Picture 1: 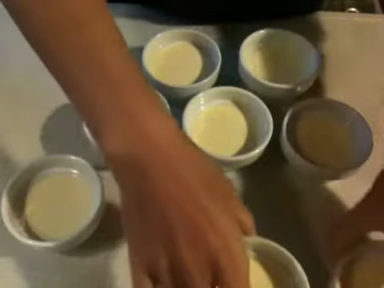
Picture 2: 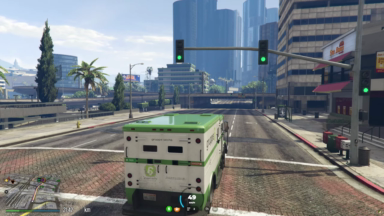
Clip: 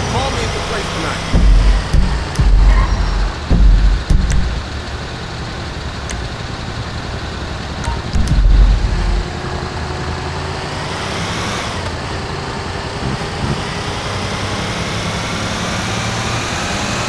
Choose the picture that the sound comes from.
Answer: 2